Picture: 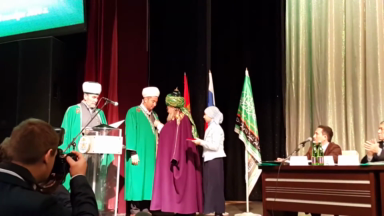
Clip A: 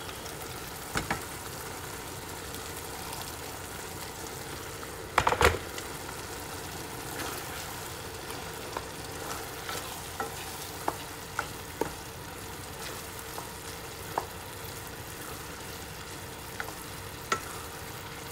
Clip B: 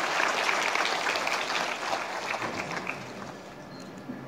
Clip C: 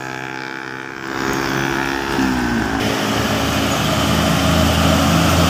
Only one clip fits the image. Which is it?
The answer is B